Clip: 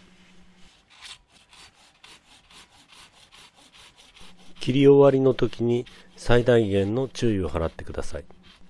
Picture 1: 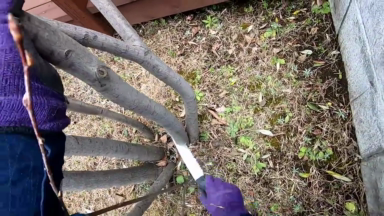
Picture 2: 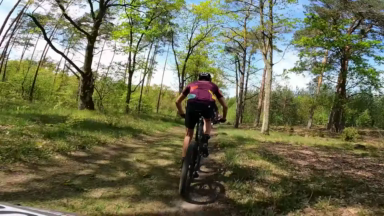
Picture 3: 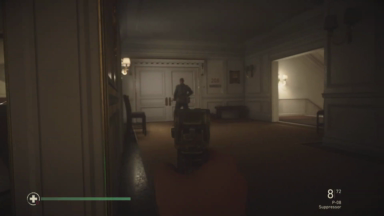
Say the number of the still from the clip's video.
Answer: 1